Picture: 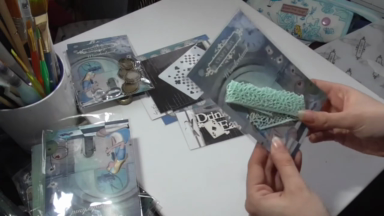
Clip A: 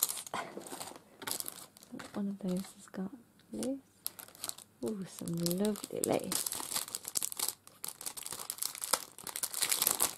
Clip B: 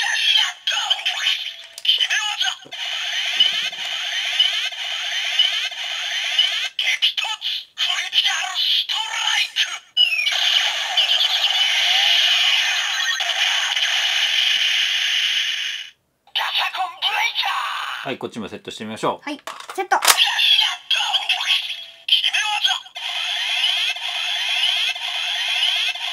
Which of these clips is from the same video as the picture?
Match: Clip A